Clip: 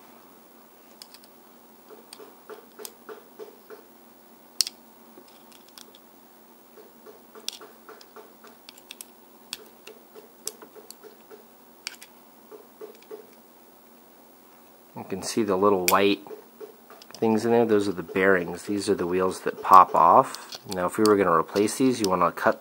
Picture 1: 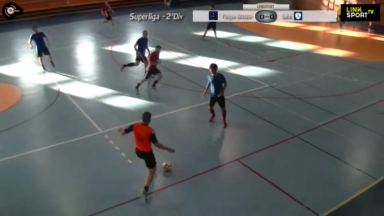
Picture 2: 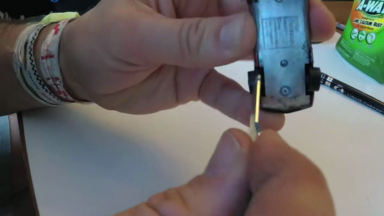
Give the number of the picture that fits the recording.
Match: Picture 2